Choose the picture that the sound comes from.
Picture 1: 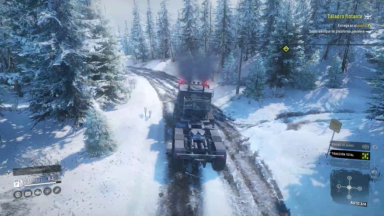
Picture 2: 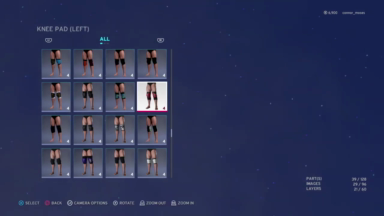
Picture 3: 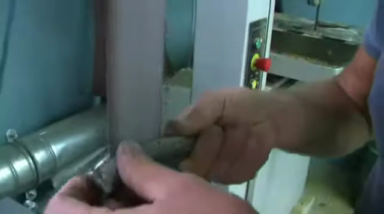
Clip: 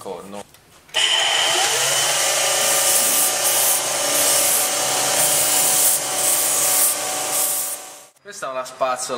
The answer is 3